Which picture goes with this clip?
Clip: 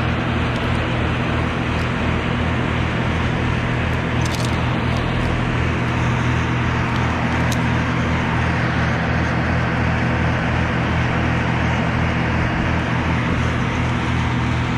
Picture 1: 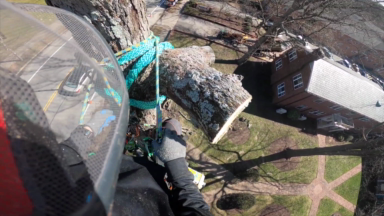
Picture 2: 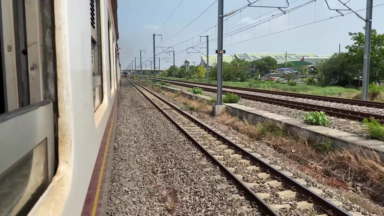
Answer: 1